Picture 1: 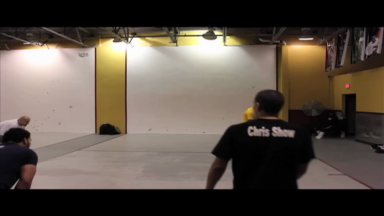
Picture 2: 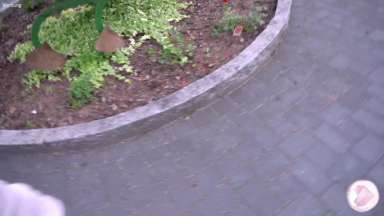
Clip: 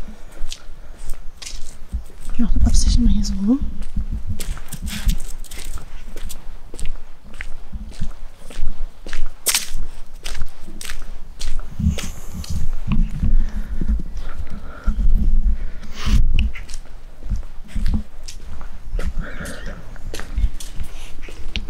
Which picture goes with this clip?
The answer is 2